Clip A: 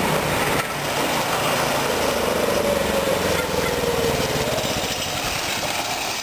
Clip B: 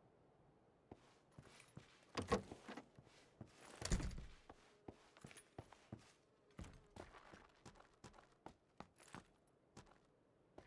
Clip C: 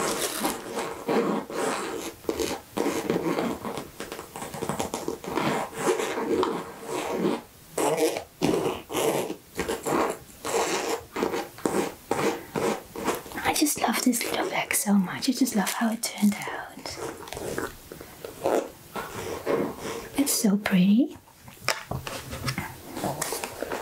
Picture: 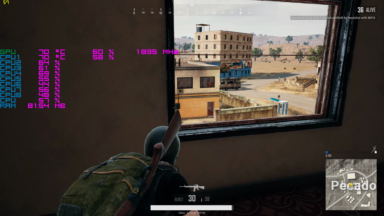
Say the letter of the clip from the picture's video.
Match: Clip B